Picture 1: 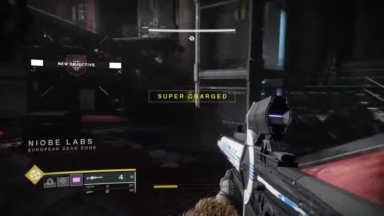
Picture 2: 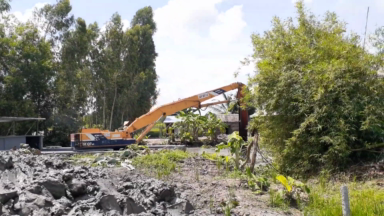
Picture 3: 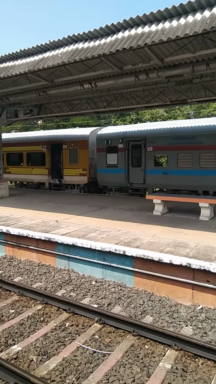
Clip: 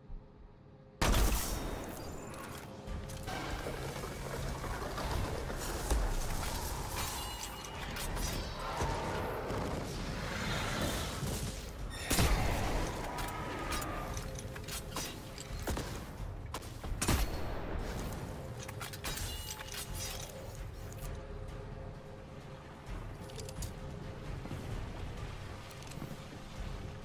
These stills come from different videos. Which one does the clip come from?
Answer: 1